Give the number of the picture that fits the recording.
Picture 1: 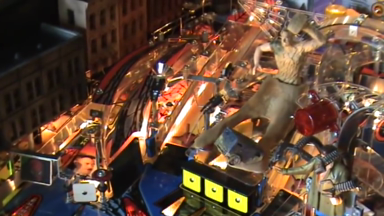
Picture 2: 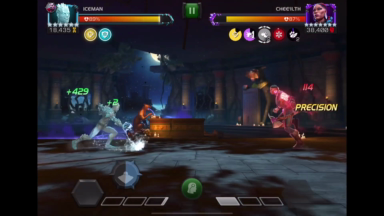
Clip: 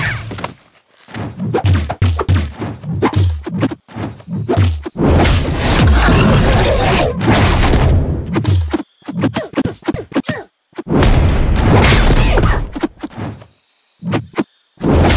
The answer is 2